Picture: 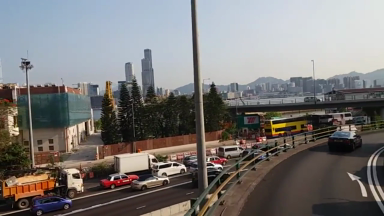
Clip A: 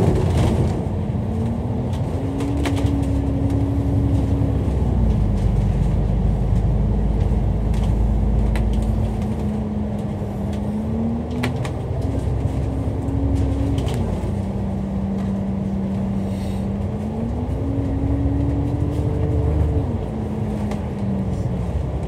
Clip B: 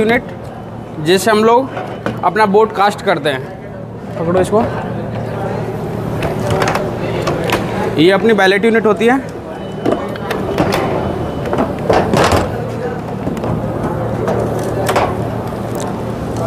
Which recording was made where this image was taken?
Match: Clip A